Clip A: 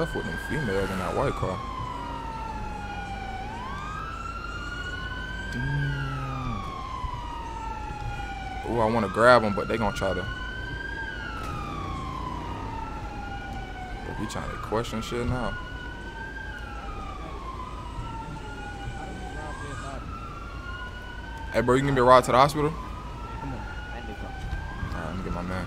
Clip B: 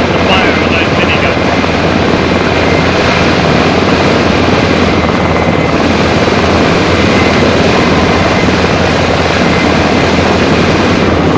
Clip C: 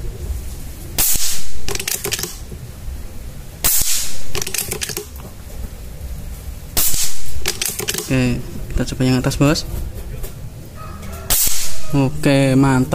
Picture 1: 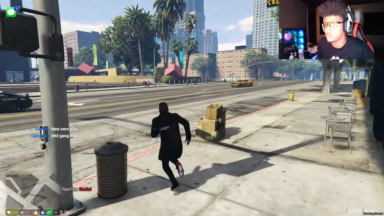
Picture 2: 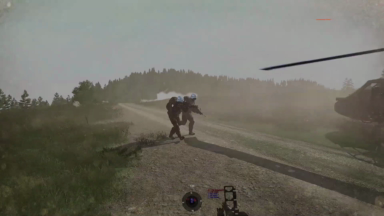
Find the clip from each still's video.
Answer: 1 A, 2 B